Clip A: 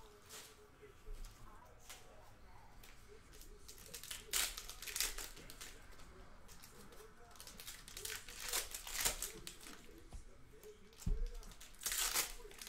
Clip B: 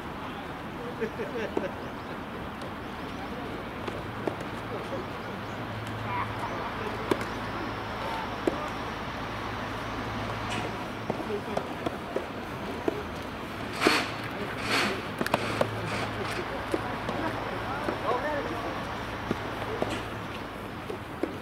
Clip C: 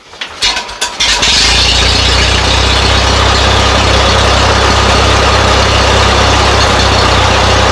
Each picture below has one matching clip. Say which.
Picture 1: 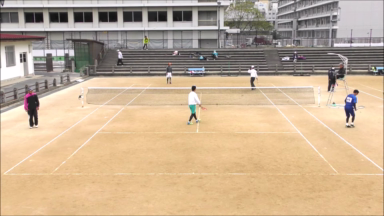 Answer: B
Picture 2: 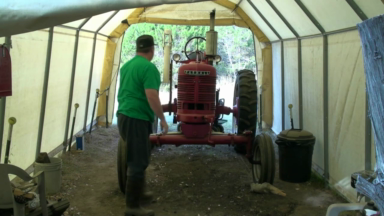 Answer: C